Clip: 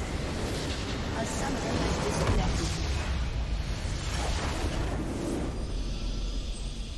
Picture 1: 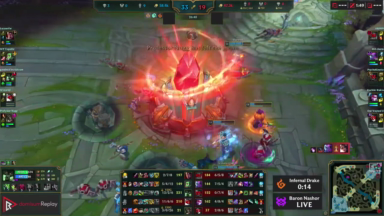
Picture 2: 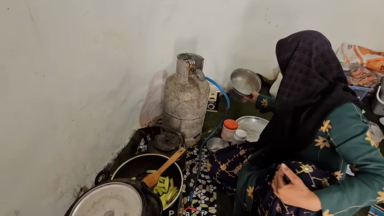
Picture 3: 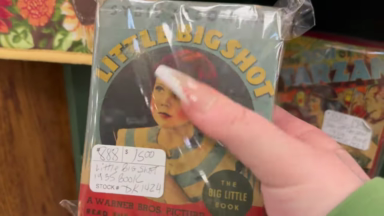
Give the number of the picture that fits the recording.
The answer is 1